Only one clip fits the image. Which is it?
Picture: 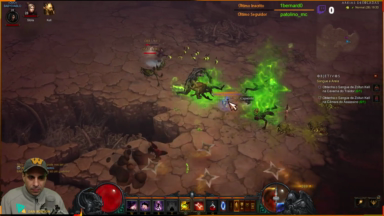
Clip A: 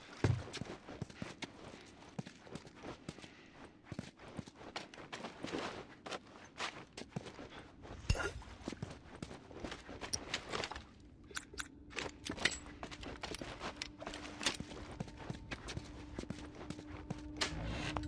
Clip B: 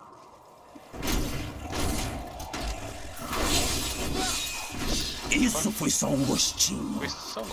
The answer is B